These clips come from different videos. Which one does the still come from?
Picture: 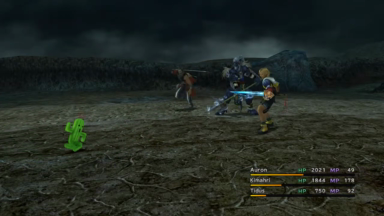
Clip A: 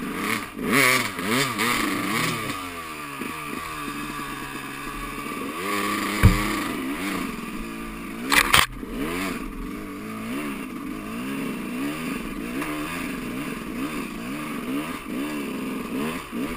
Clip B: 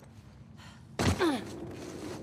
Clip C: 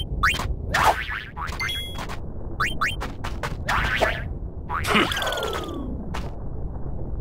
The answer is C